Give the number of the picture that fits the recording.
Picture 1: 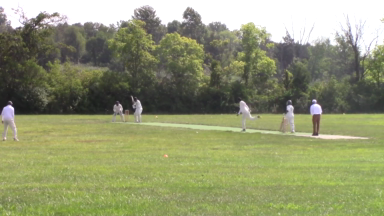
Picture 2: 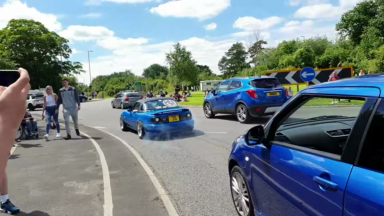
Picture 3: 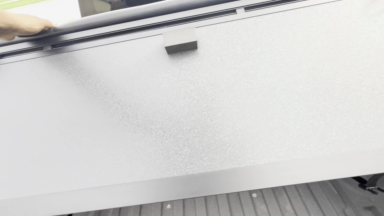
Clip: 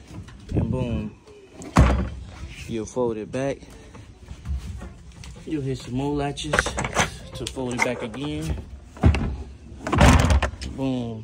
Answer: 3